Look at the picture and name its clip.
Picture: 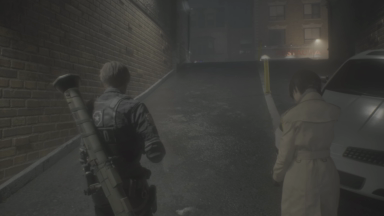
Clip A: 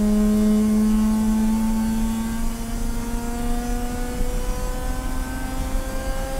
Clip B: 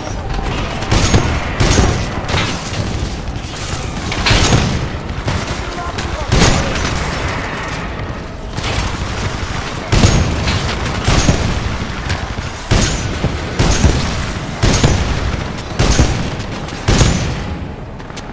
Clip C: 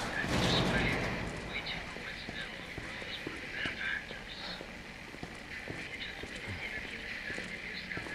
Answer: C